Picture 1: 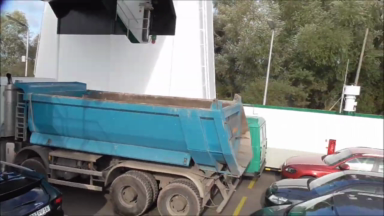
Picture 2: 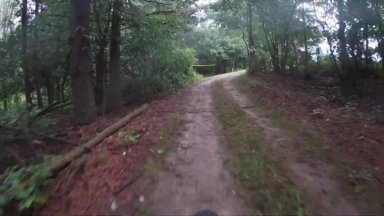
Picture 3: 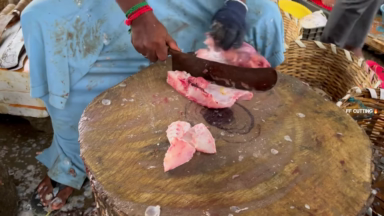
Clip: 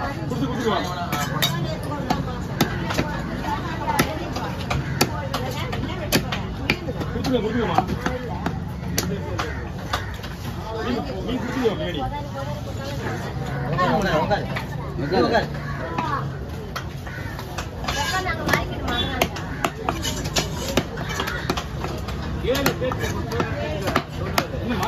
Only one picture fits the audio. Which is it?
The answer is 3